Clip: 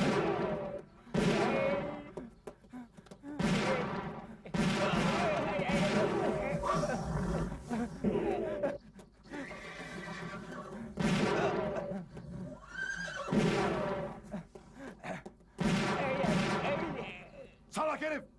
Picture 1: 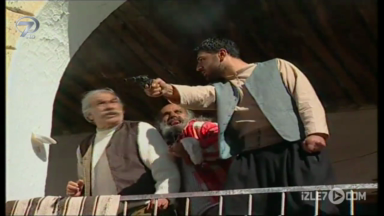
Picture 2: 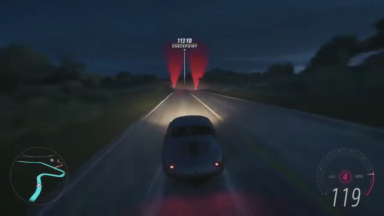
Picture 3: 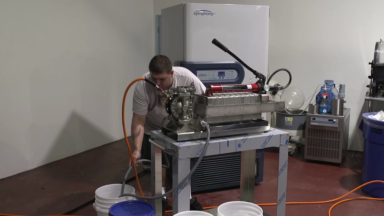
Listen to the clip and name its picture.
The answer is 1